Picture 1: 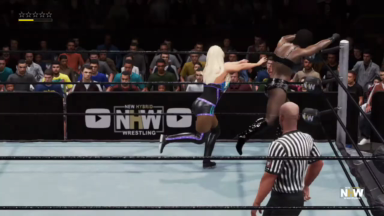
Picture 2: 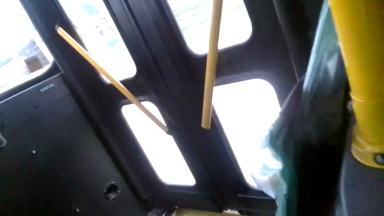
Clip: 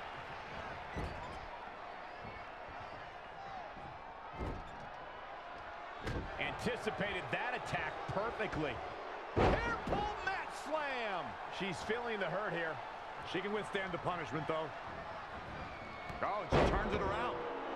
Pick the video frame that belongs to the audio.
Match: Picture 1